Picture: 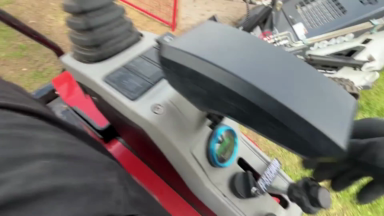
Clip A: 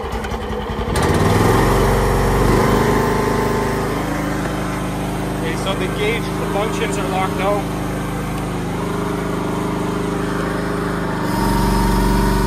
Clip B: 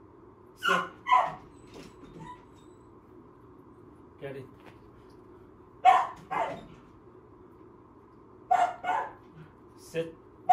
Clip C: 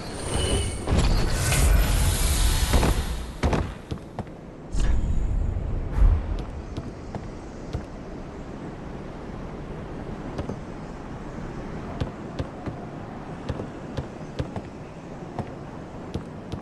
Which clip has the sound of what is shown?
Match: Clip A